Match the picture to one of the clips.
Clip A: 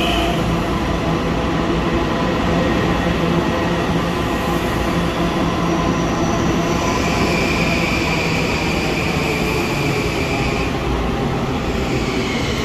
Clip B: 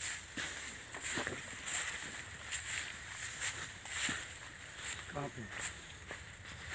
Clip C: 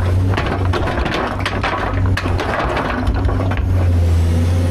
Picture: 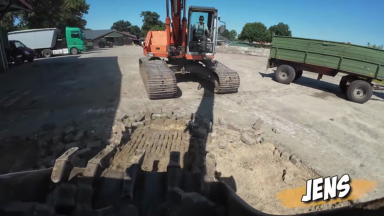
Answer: C